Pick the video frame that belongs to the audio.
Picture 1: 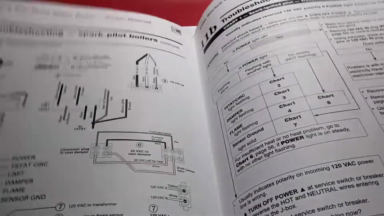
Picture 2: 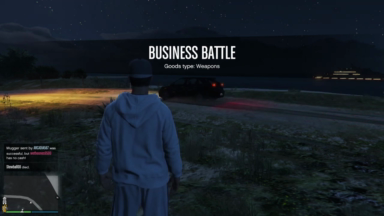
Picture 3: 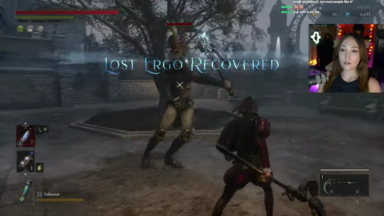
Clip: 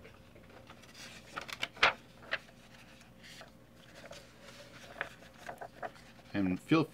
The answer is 1